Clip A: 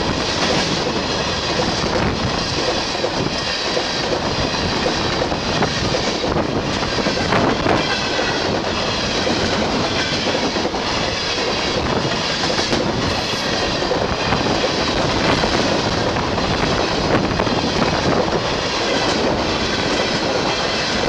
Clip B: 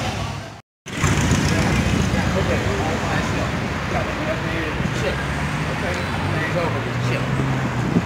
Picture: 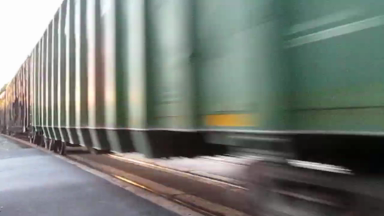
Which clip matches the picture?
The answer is A